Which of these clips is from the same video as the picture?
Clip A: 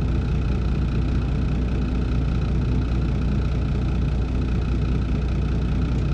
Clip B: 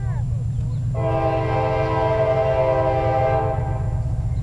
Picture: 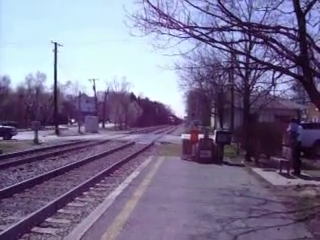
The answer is B